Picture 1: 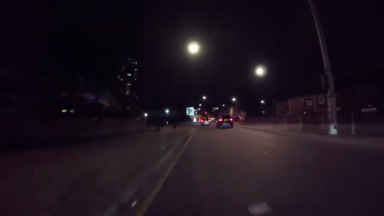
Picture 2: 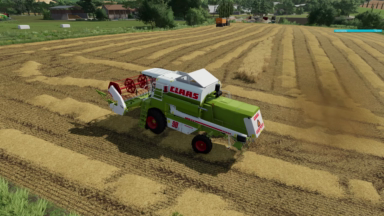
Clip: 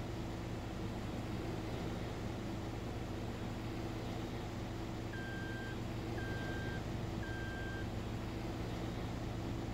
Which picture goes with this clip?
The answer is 2